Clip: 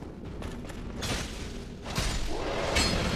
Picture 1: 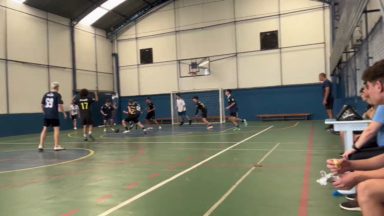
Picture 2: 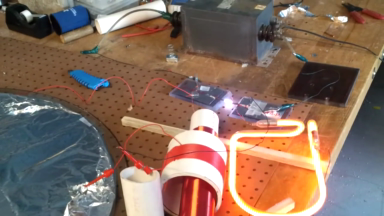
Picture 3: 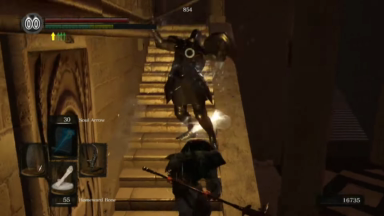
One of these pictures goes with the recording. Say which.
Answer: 3